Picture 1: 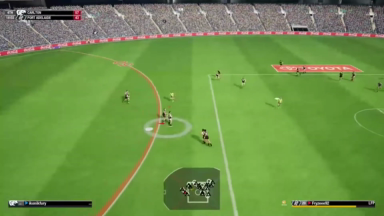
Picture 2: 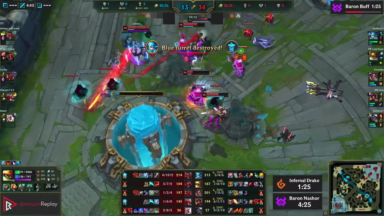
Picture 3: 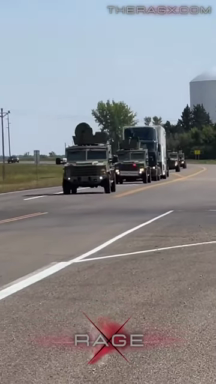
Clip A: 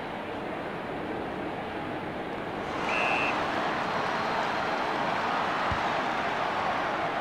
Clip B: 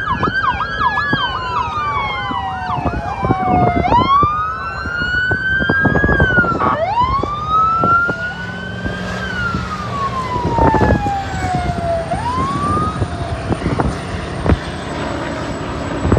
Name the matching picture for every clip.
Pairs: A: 1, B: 3